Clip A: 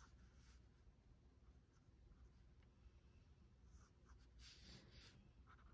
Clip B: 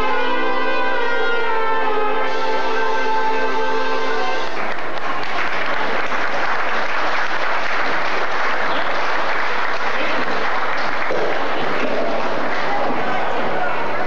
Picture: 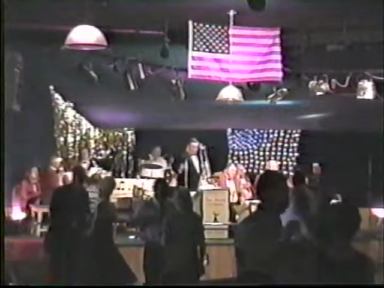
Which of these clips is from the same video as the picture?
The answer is B